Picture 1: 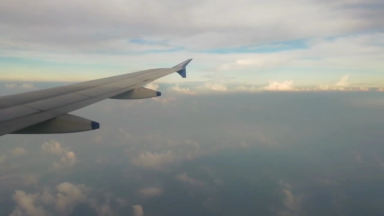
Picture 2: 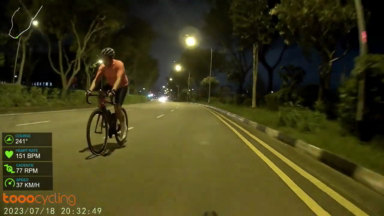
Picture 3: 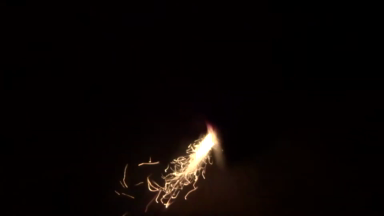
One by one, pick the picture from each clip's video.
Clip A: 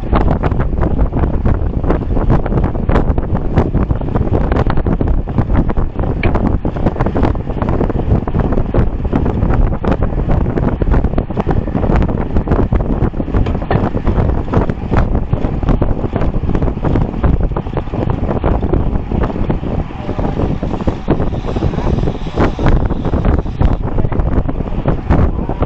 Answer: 2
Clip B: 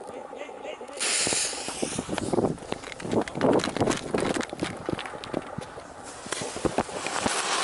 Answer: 3